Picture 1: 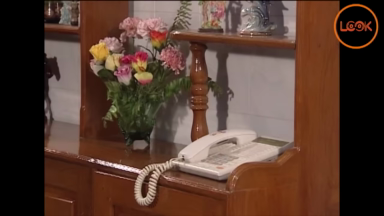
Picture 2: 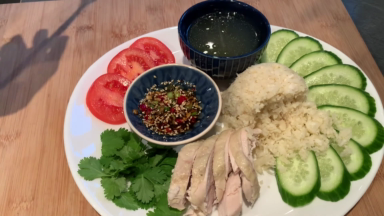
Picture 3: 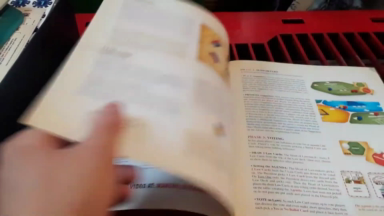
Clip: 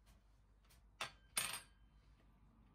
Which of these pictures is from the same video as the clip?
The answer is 2